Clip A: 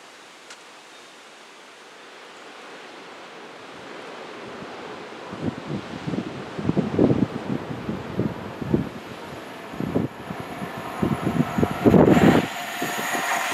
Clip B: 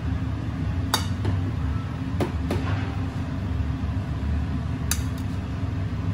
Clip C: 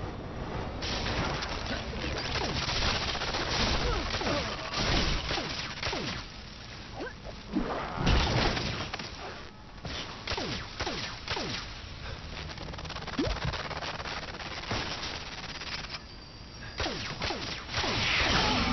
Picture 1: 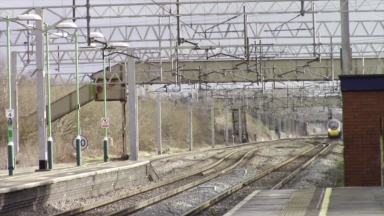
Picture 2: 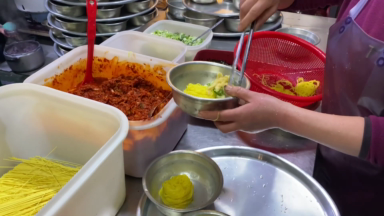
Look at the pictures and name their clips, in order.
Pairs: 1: A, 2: B